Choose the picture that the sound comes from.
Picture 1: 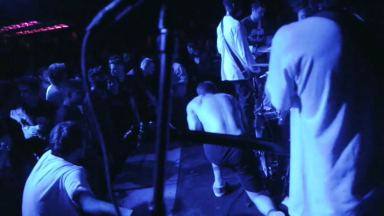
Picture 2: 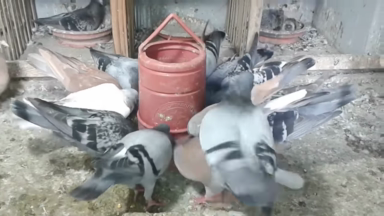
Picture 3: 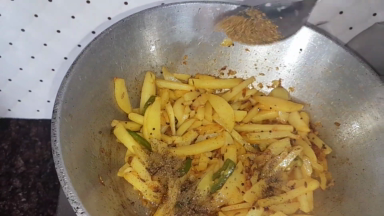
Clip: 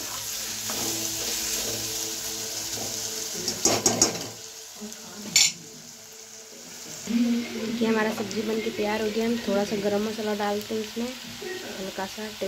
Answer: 3